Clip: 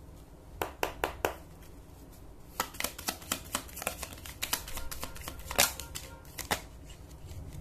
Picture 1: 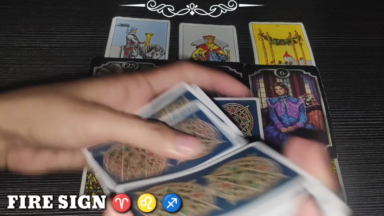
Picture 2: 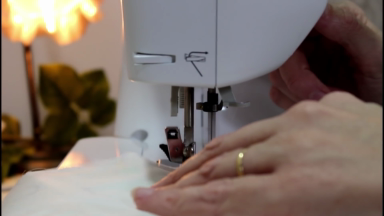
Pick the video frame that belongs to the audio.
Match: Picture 1